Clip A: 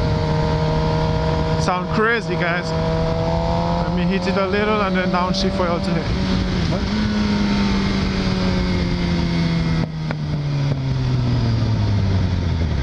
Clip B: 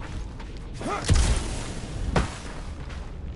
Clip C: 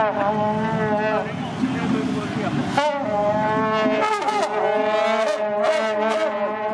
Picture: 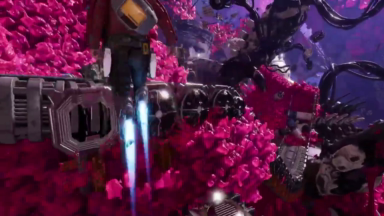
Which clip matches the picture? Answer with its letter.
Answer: B